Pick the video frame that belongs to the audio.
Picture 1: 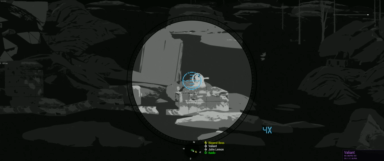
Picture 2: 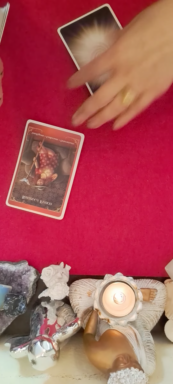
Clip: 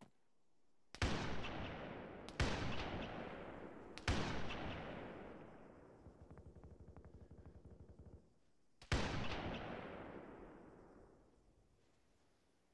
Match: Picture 1